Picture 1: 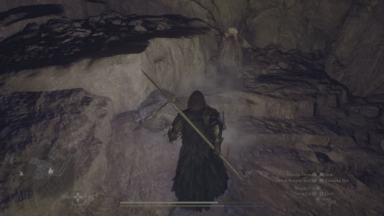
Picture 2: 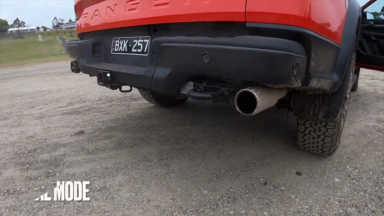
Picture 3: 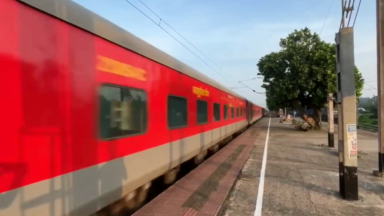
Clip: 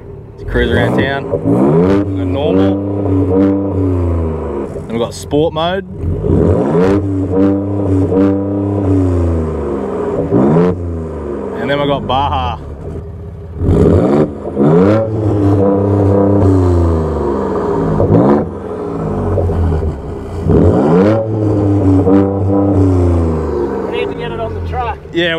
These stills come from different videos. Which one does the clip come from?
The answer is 2